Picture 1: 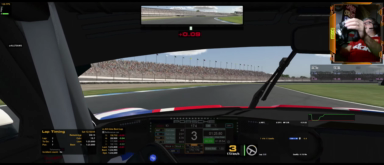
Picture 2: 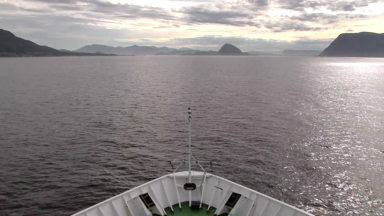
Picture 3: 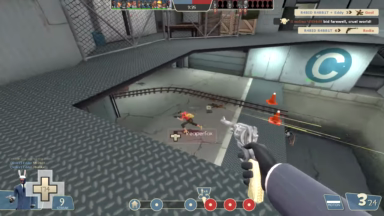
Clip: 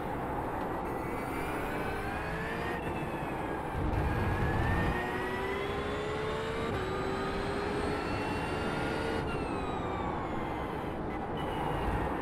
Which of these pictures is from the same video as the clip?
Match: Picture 1